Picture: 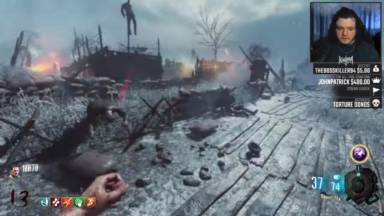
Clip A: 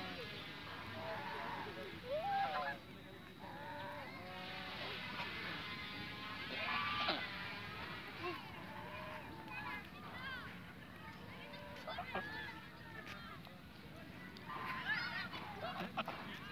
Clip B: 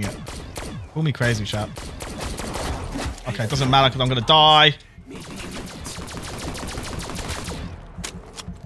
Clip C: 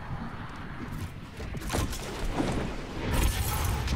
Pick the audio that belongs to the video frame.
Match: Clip B